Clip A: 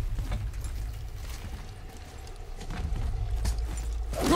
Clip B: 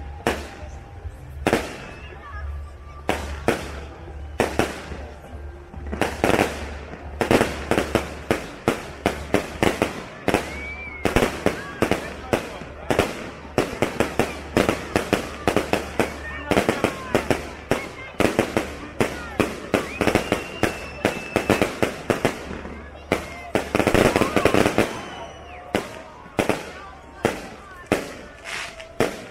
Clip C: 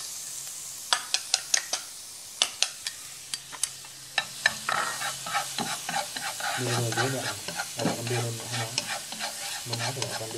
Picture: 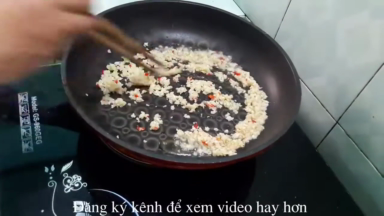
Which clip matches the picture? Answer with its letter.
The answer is C